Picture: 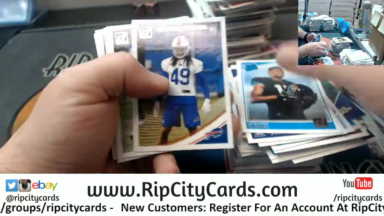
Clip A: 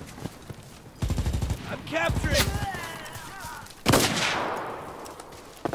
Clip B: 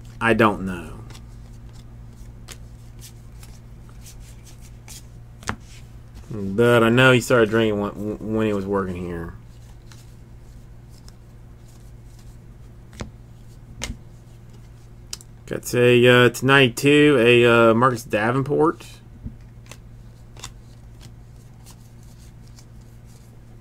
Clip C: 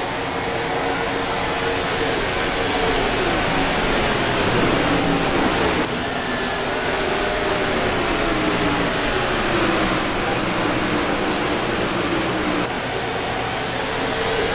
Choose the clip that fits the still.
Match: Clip B